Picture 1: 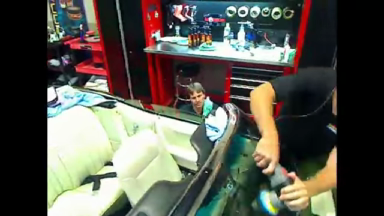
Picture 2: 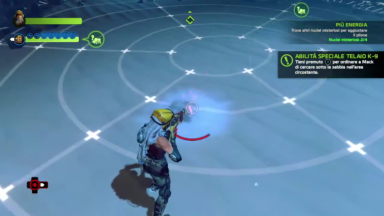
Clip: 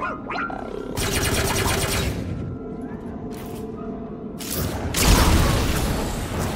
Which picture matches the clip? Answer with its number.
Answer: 2